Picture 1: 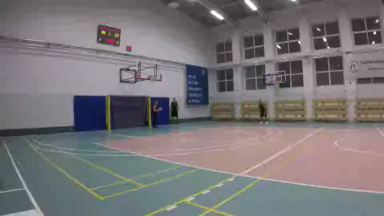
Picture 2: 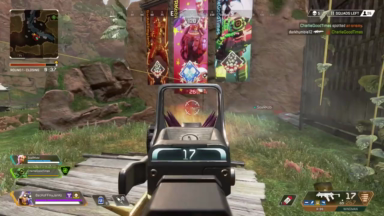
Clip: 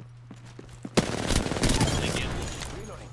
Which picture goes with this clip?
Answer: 2